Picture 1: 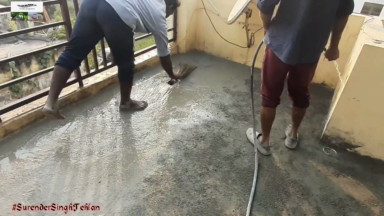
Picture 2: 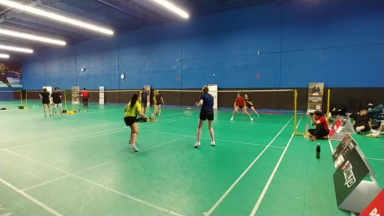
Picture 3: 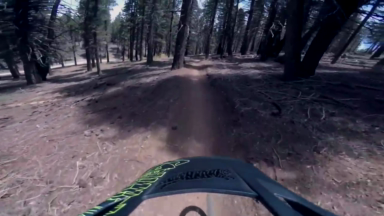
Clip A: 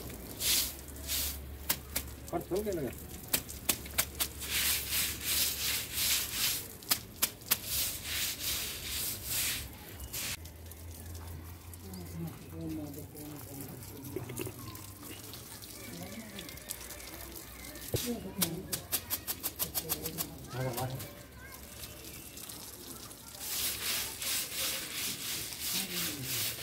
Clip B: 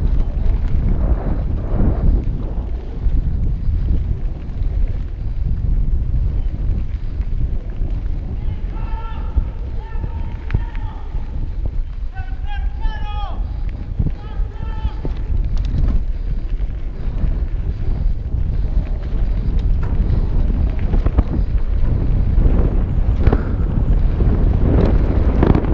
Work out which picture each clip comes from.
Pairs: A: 1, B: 3